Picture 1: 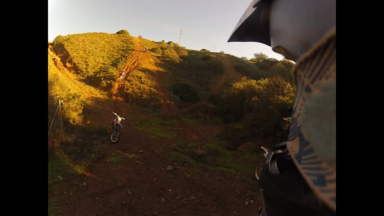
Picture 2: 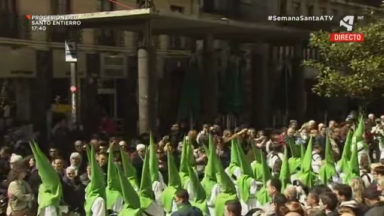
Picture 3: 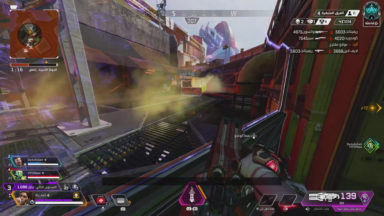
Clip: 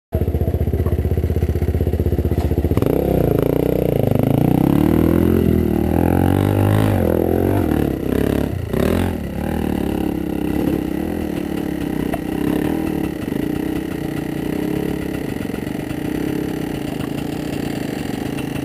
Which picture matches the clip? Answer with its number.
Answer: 1